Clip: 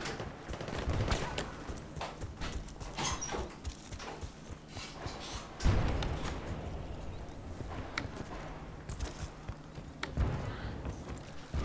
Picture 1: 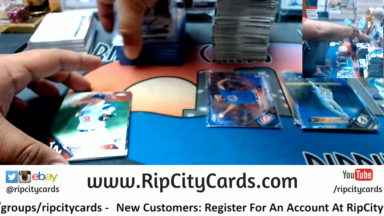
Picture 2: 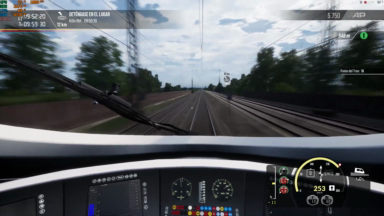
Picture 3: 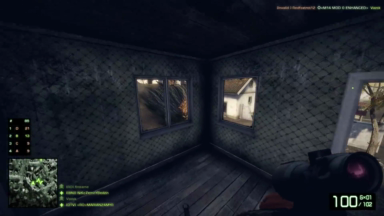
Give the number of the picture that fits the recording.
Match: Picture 3